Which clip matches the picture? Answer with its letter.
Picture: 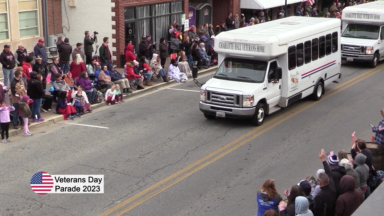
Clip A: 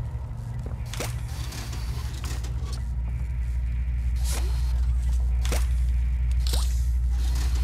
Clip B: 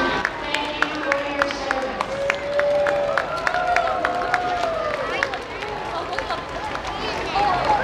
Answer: B